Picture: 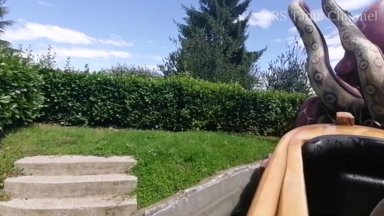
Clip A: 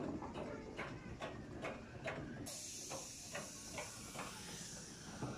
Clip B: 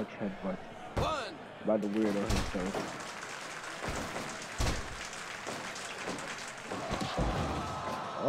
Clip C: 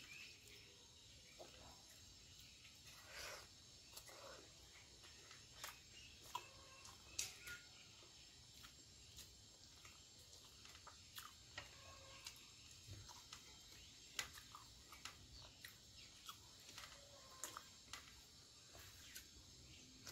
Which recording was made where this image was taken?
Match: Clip A